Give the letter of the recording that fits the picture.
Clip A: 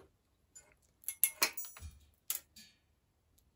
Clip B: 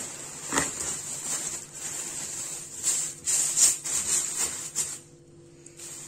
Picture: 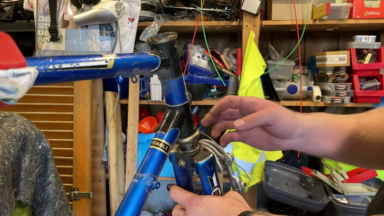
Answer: A